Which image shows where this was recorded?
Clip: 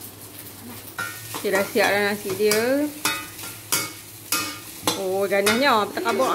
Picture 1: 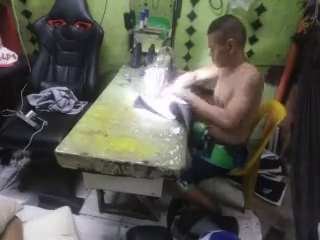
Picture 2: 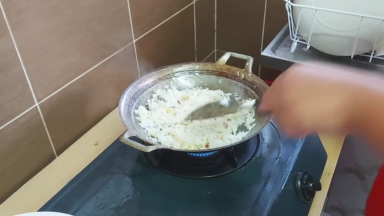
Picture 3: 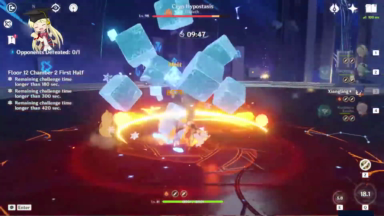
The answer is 2